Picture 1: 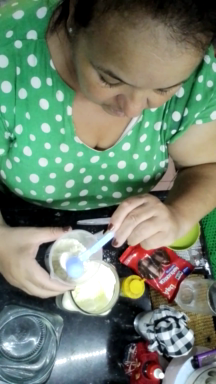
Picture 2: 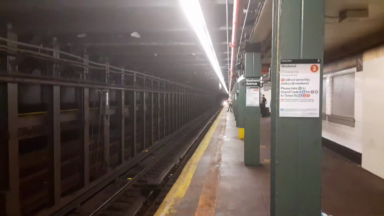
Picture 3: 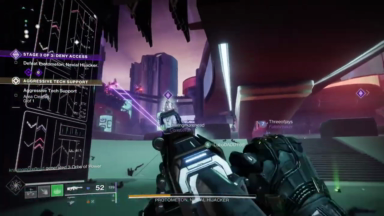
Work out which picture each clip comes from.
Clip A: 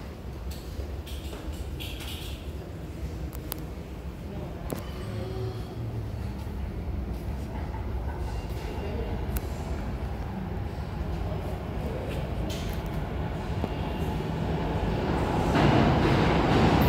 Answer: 2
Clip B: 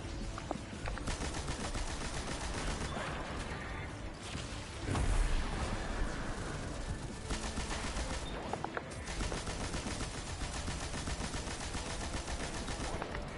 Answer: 3